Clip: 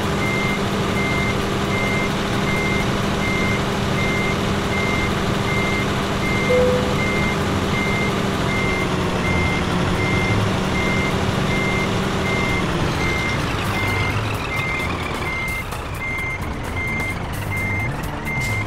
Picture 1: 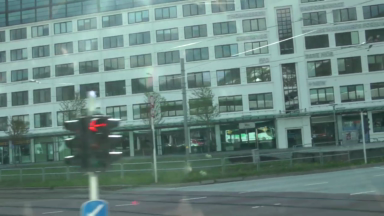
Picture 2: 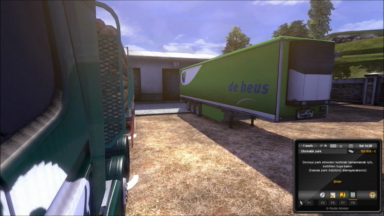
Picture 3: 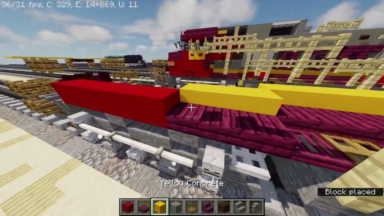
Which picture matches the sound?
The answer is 2